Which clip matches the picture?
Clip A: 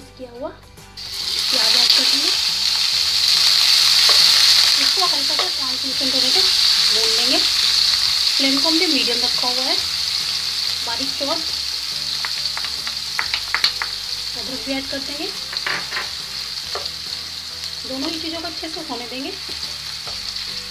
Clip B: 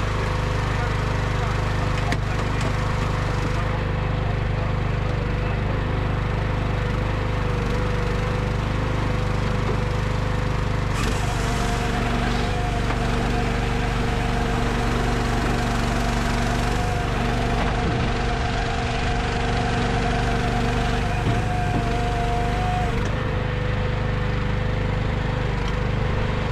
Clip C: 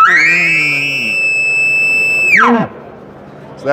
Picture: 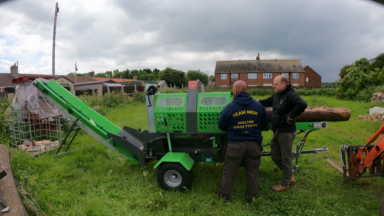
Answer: B